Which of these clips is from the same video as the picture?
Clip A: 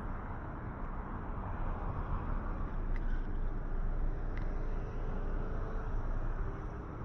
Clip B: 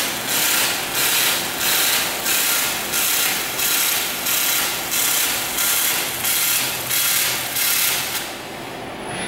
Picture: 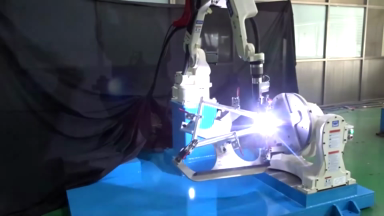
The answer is B